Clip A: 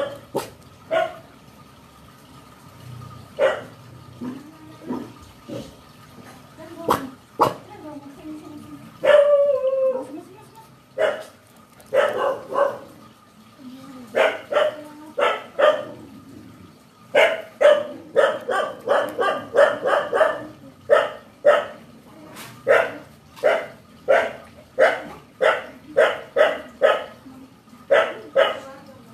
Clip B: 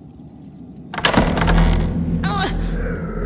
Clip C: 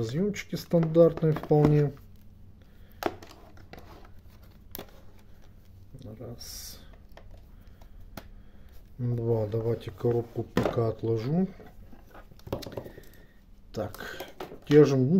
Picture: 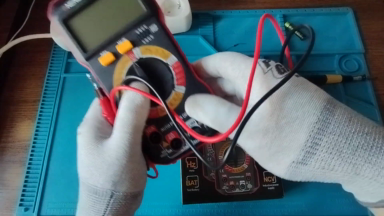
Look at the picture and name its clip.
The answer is C